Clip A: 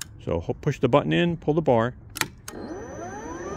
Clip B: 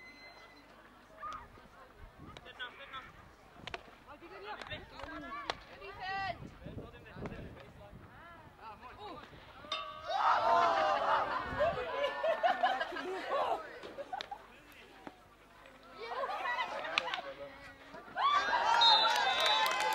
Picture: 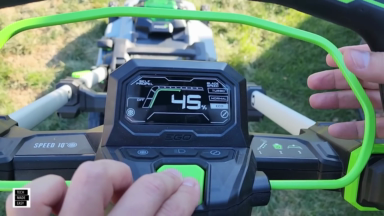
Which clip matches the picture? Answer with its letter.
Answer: A